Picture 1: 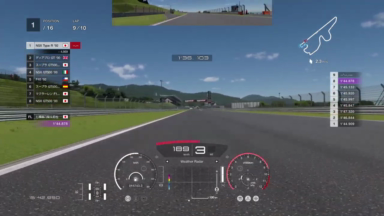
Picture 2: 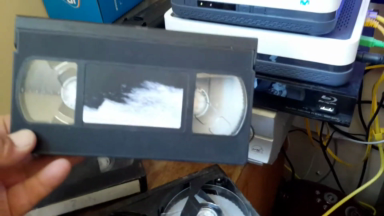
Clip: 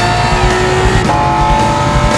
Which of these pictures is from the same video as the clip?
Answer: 1